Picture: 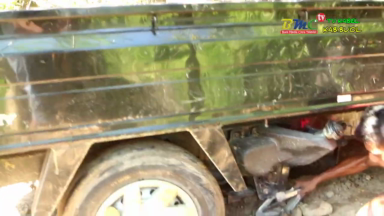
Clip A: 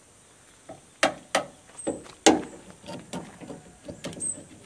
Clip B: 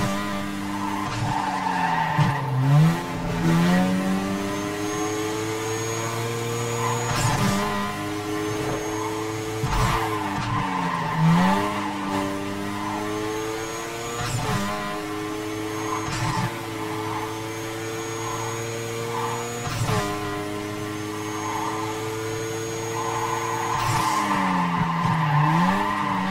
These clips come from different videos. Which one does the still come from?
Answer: A